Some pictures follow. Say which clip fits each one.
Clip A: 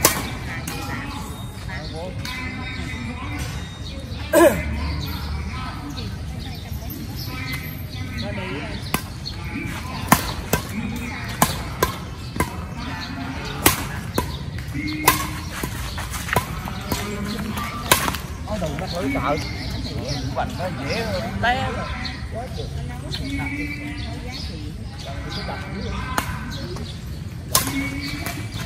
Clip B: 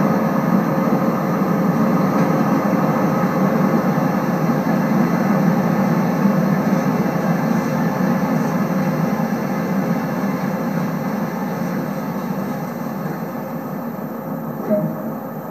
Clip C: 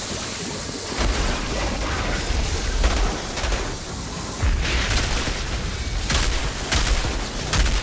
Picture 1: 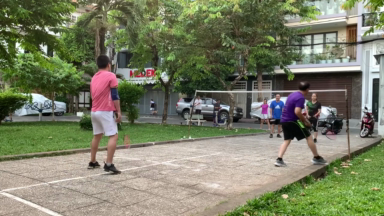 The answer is A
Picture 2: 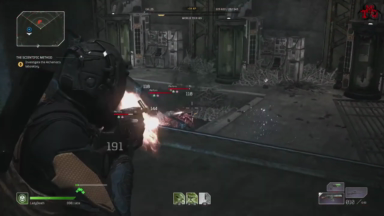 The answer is C